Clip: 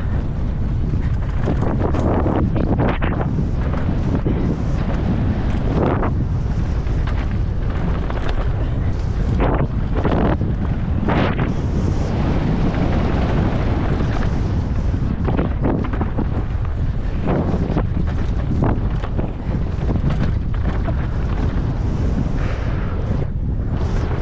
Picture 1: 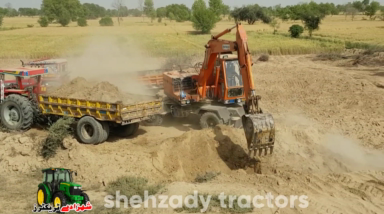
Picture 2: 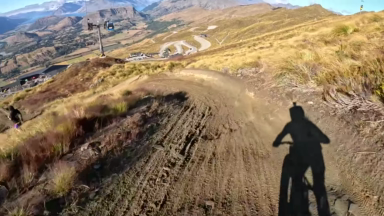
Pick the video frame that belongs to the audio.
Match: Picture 2